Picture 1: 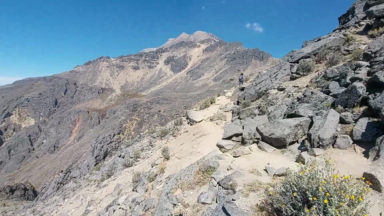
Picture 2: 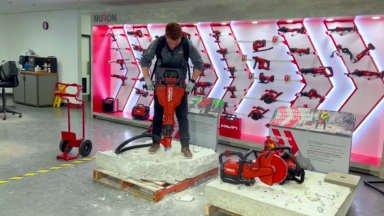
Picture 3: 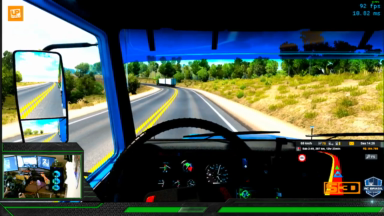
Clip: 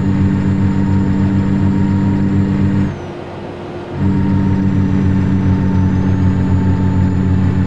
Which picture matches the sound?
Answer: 3